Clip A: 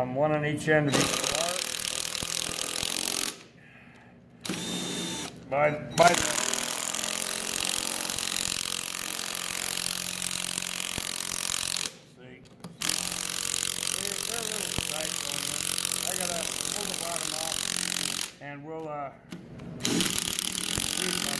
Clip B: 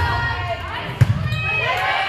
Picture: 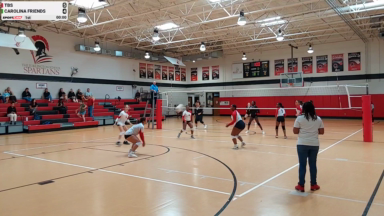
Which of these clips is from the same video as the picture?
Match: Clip B